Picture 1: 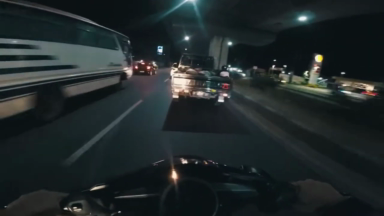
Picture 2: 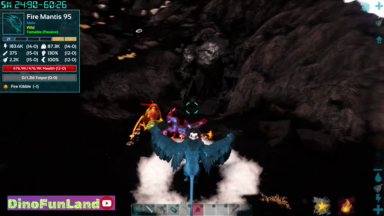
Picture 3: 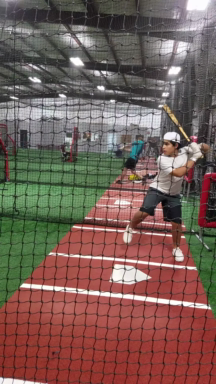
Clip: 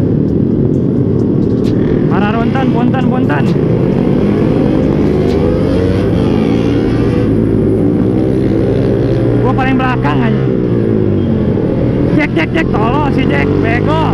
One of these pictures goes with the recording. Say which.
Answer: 1